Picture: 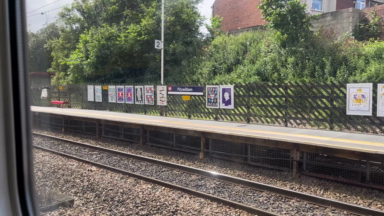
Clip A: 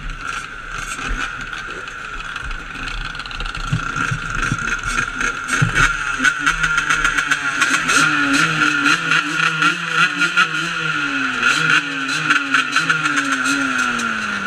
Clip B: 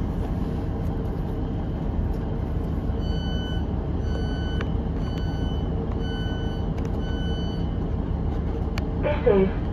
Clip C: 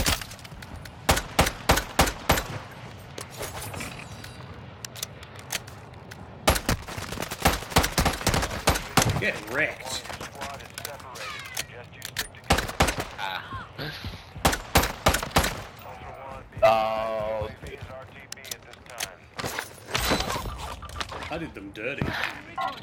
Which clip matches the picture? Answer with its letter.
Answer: B